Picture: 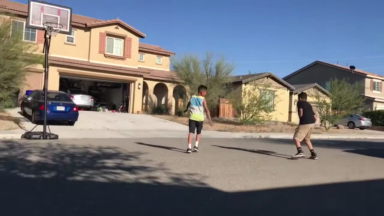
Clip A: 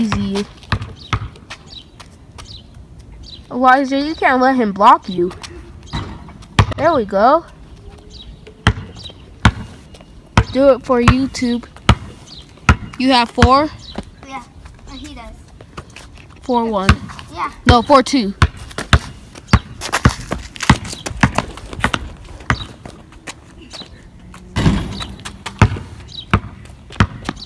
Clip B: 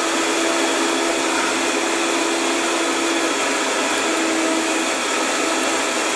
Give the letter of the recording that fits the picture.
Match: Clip A